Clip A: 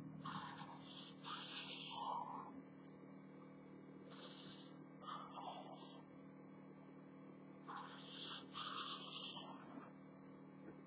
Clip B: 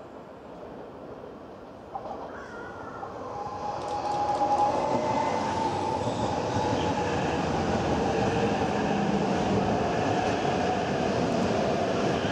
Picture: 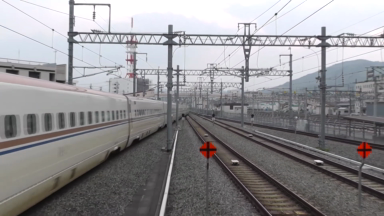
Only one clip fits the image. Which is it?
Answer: B